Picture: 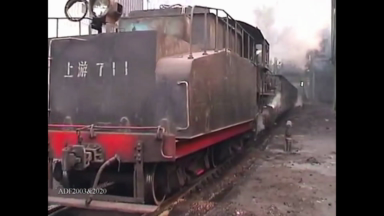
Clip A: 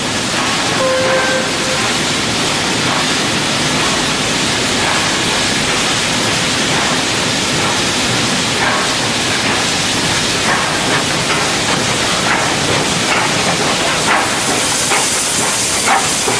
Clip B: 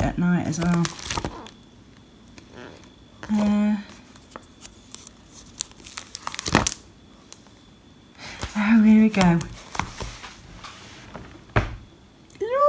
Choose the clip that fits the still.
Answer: A